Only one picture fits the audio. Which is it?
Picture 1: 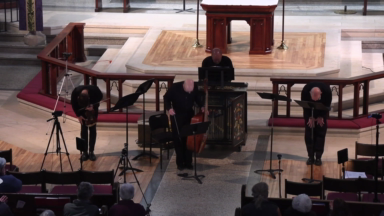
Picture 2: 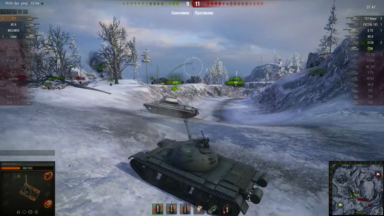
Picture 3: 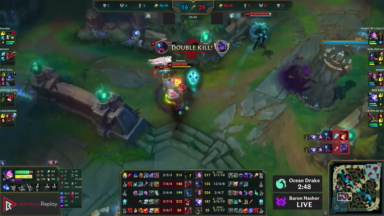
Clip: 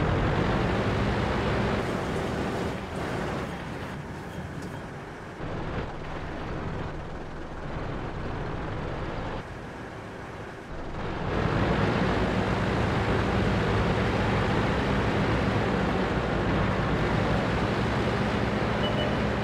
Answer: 2